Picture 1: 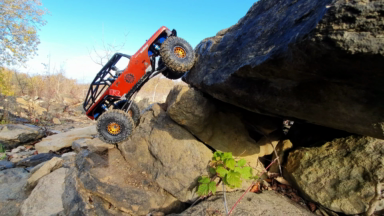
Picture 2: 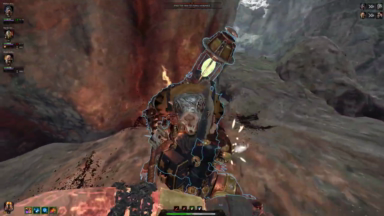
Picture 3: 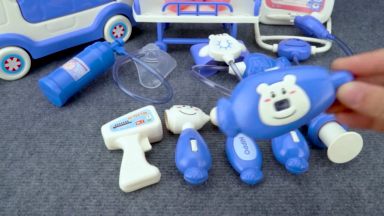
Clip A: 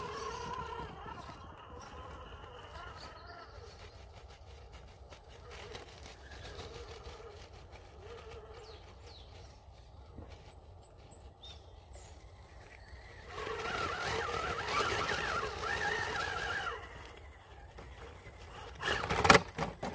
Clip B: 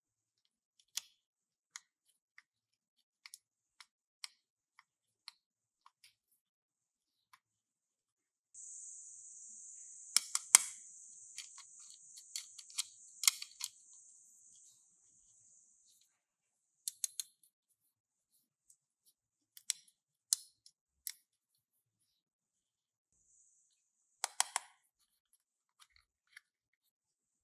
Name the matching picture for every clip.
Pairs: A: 1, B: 3